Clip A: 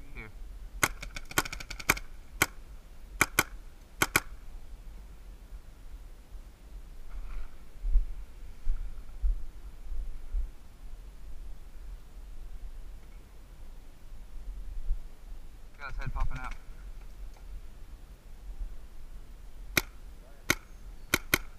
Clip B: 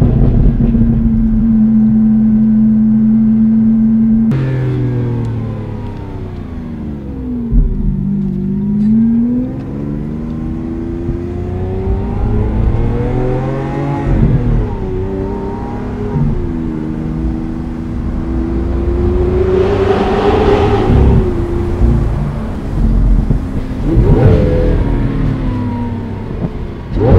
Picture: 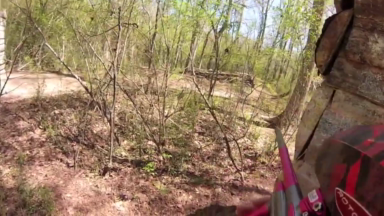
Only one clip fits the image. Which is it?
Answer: A